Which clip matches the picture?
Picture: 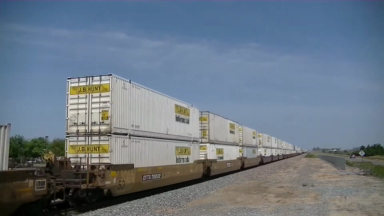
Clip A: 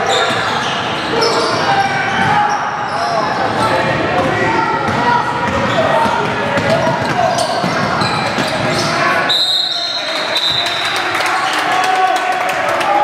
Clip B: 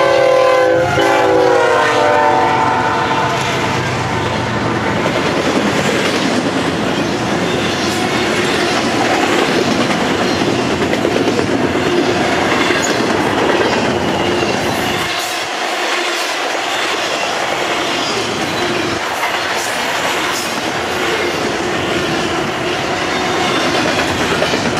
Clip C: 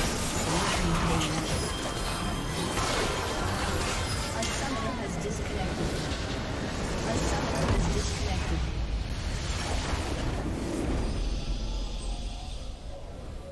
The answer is B